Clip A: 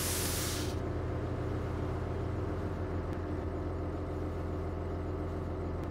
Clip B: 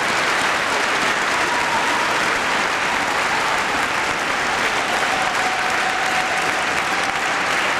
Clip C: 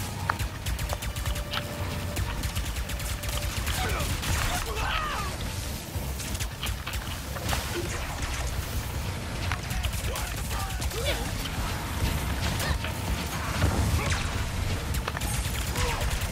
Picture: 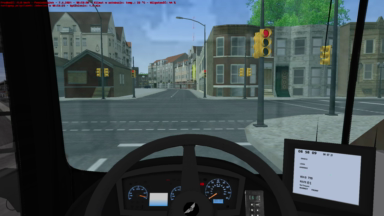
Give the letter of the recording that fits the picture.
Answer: A